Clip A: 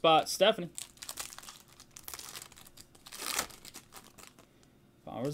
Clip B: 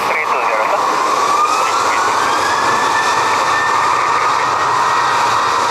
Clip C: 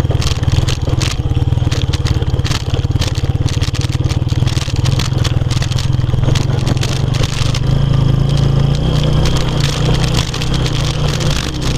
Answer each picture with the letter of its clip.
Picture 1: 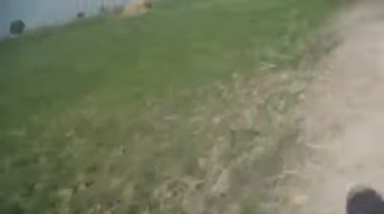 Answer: C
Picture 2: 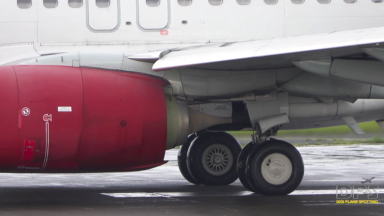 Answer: B